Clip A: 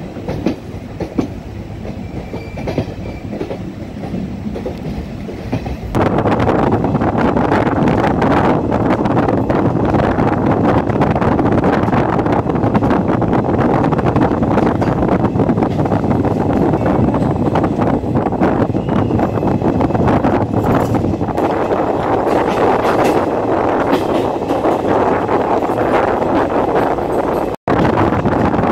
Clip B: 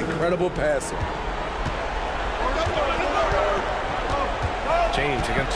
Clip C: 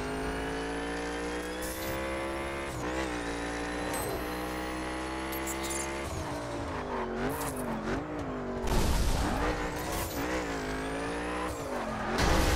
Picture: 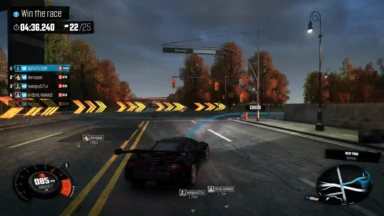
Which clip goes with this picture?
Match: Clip C